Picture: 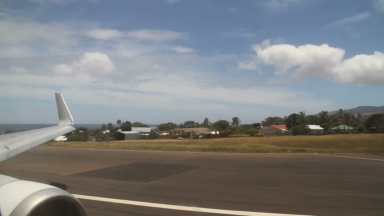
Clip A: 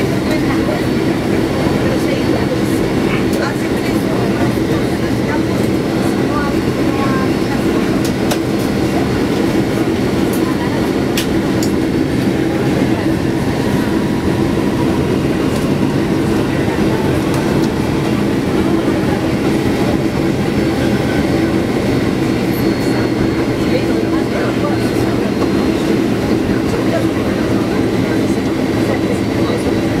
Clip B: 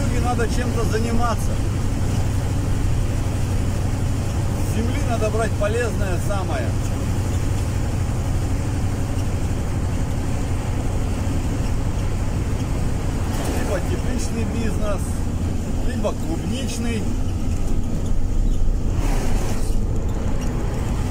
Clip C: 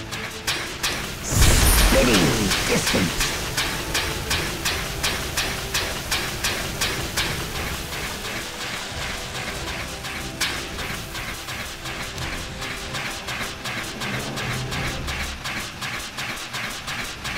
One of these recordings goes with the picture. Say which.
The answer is A